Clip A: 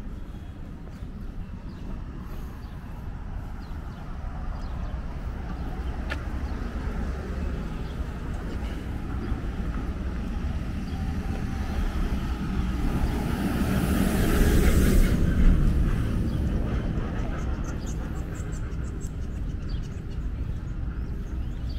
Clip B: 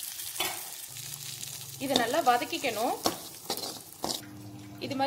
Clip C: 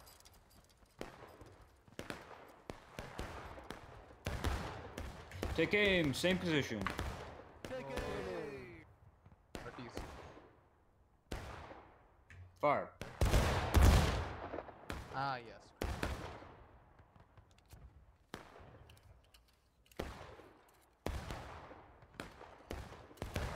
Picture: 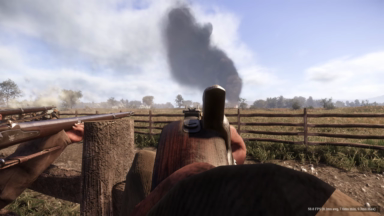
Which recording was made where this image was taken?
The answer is C